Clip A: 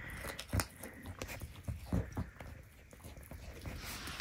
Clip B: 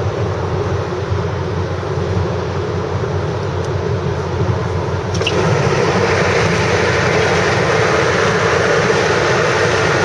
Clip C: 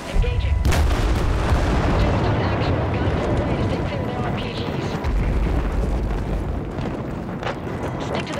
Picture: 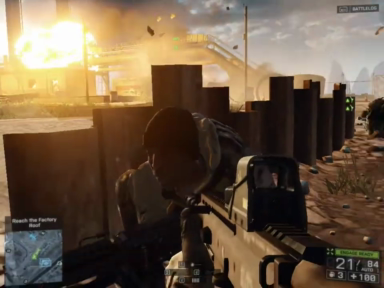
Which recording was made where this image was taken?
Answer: C